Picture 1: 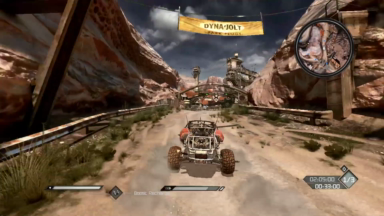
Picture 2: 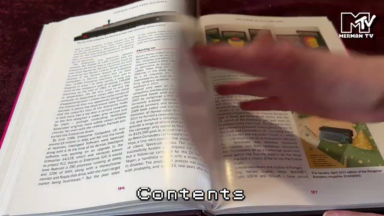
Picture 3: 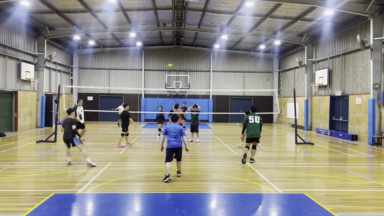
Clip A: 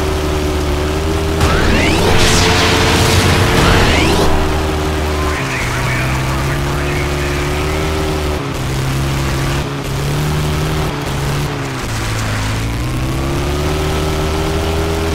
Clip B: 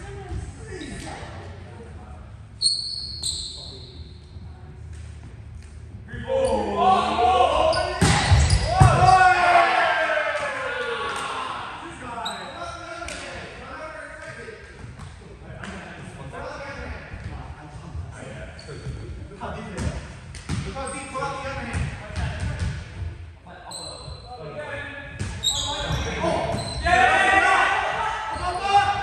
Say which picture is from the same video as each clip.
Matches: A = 1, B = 3